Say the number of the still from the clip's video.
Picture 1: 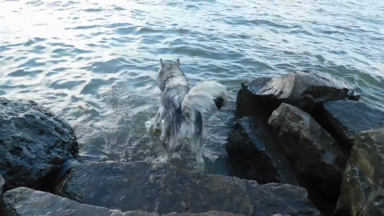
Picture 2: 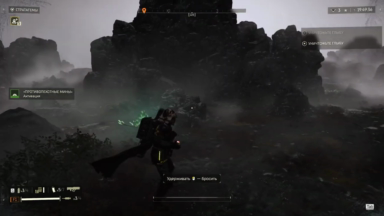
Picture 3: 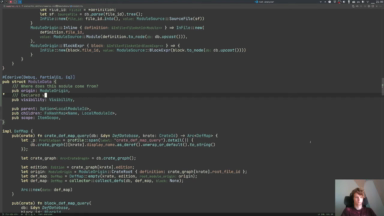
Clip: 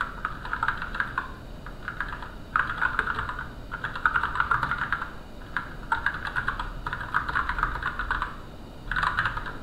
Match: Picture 3